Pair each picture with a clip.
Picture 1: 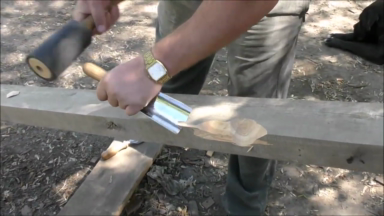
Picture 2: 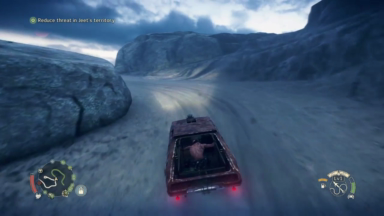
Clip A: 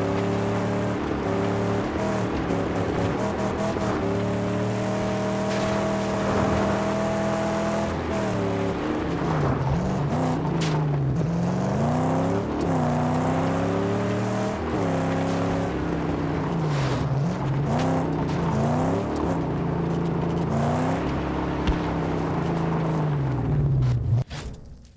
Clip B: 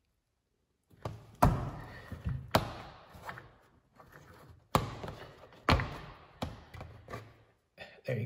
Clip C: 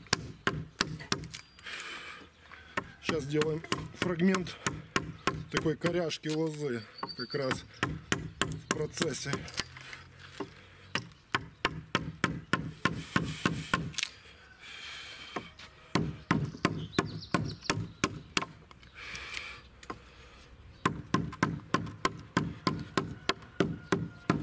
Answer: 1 C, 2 A